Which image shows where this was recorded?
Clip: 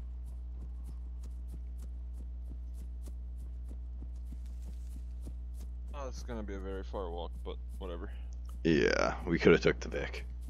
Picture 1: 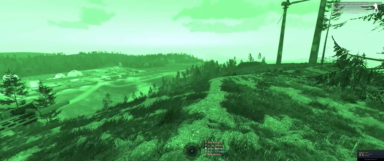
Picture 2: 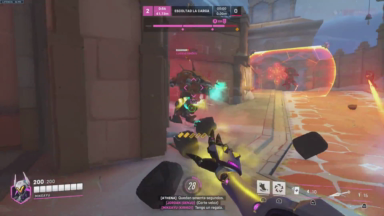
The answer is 1